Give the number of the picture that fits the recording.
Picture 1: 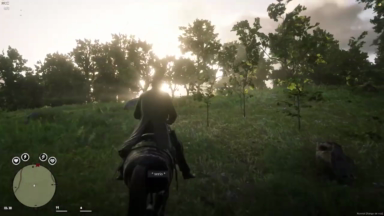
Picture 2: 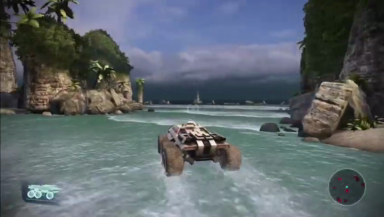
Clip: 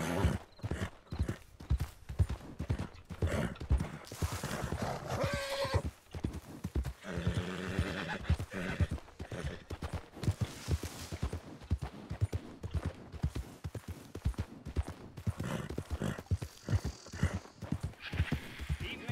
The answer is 1